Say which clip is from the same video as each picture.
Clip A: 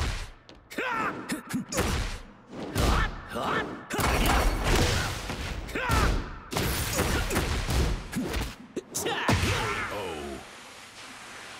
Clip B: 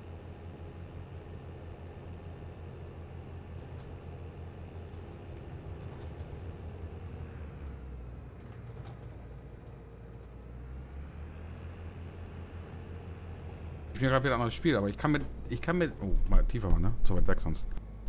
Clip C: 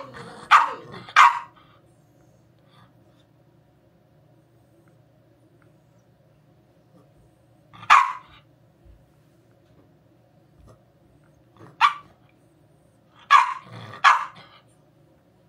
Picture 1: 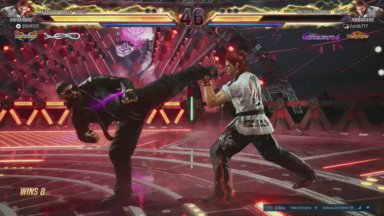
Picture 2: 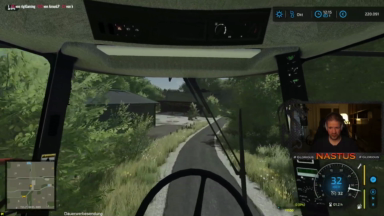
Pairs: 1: A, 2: B